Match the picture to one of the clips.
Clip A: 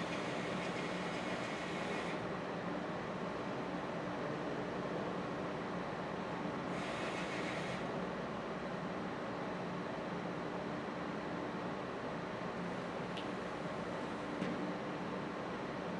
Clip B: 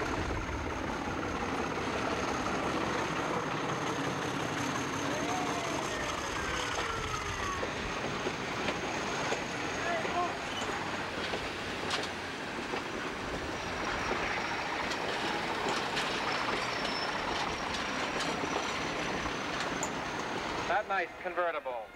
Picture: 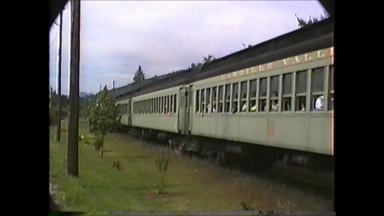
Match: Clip B